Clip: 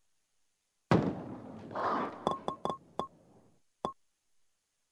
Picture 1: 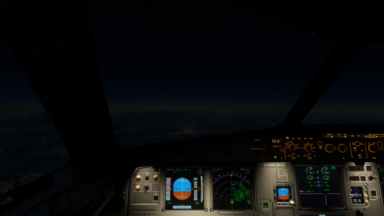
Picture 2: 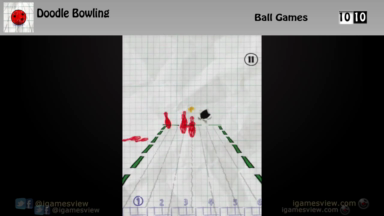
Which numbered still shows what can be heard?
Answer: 2